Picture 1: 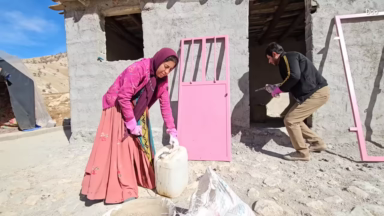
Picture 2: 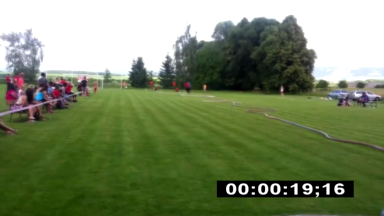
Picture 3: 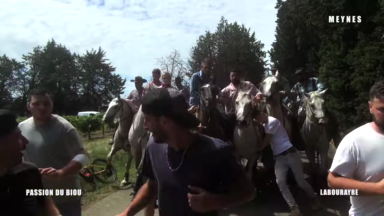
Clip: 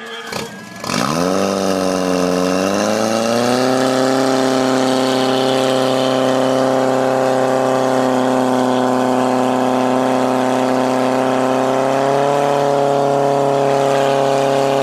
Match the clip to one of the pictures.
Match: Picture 2